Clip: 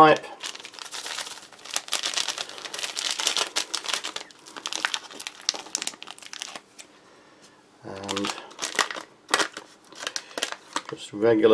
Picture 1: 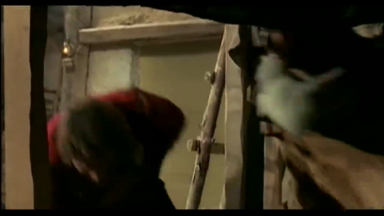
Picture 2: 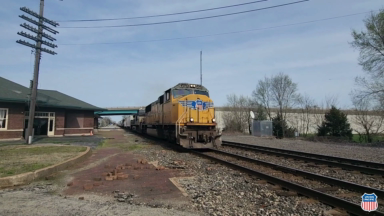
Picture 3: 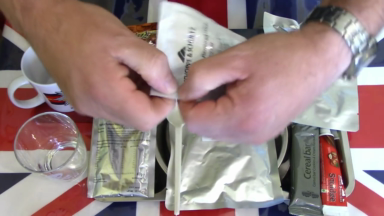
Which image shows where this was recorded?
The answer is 3